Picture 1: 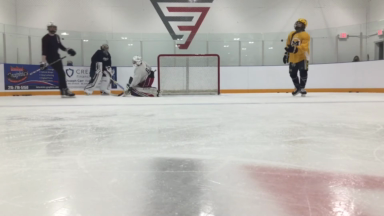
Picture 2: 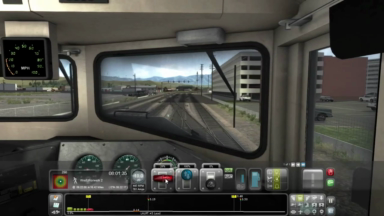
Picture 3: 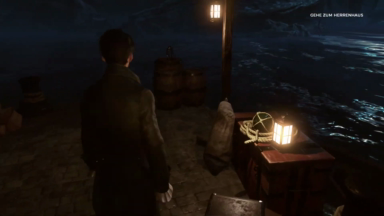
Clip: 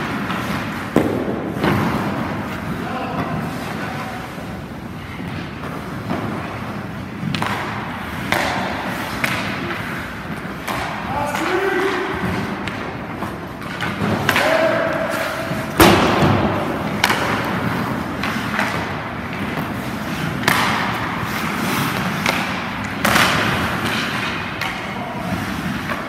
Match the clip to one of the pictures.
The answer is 1